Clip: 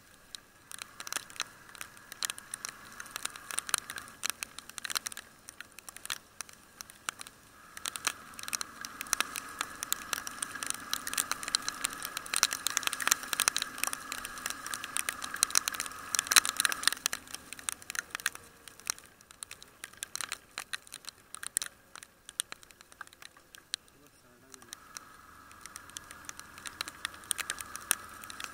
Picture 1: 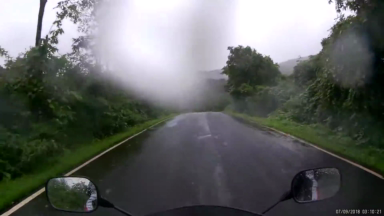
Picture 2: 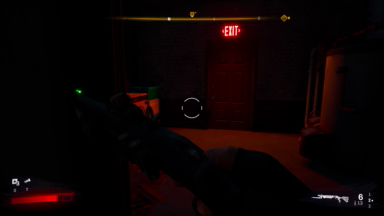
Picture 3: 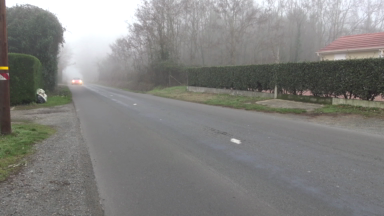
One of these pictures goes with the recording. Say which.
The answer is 1